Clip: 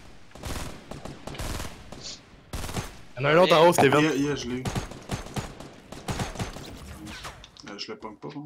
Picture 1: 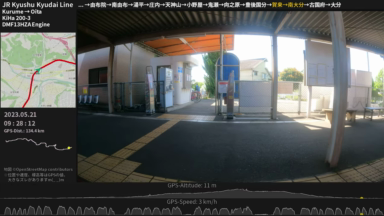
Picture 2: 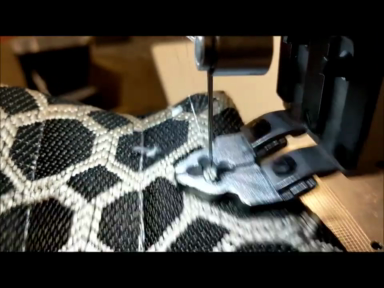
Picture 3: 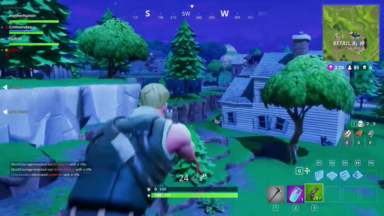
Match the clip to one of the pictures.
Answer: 3